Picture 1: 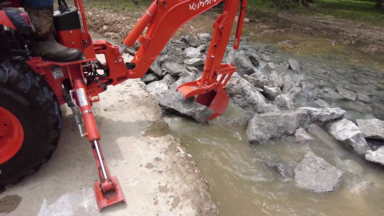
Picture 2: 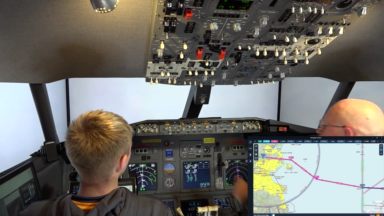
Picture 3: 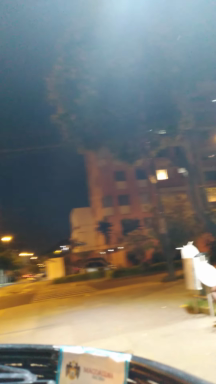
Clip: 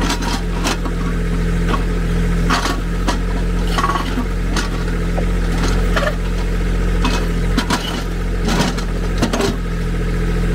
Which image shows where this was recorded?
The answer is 1